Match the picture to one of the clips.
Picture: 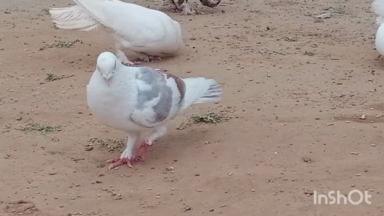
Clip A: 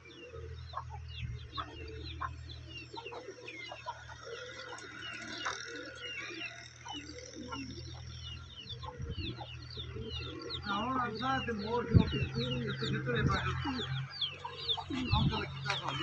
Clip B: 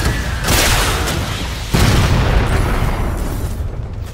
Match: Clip A